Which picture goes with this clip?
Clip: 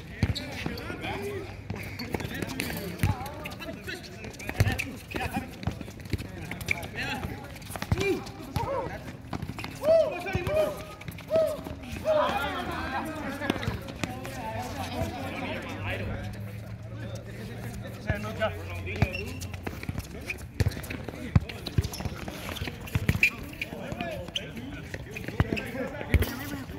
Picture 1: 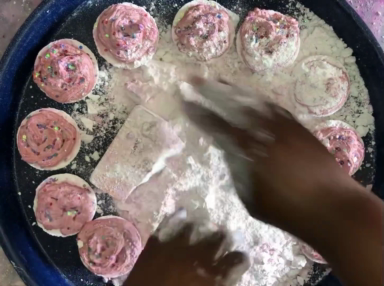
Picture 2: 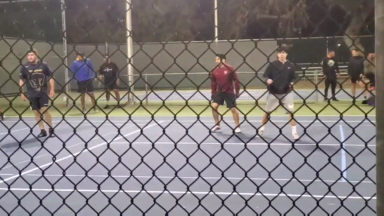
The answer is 2